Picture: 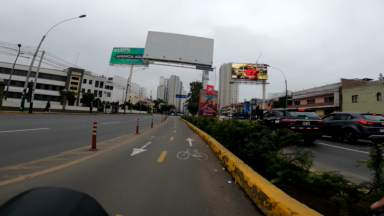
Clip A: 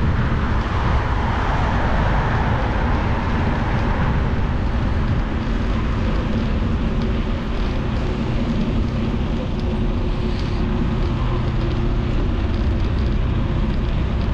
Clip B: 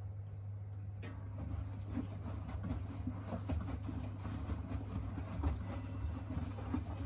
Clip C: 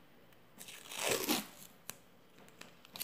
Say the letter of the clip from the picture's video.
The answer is A